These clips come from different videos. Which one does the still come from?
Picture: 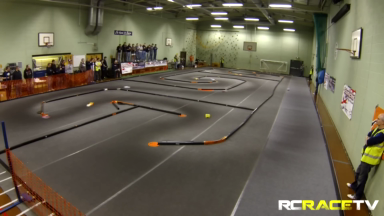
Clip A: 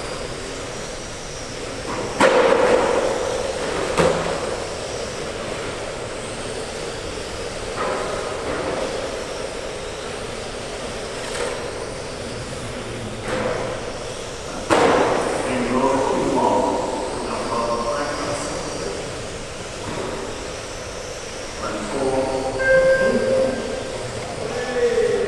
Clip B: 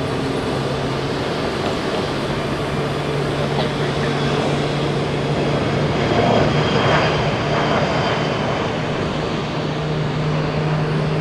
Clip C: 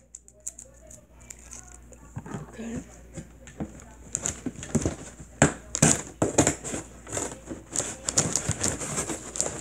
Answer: A